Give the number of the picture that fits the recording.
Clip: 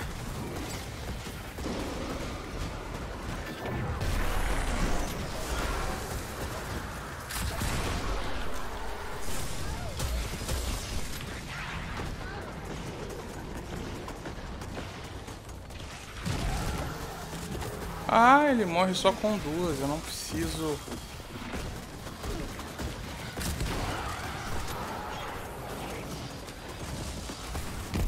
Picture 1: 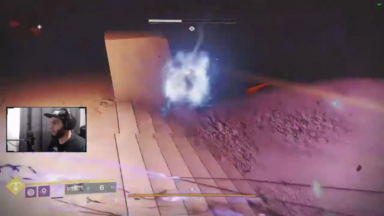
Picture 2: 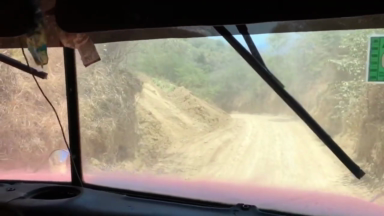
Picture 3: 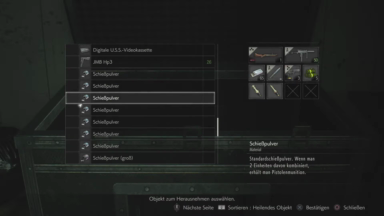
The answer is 1